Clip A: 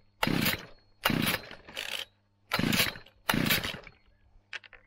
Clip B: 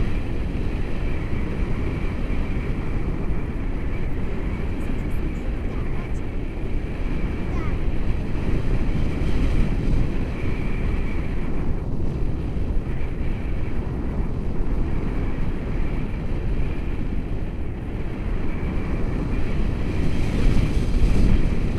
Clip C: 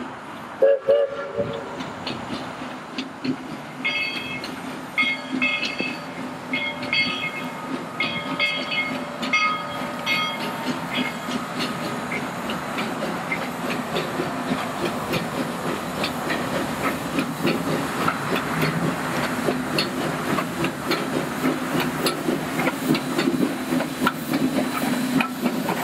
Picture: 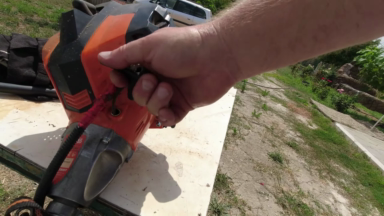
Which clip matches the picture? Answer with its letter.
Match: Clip A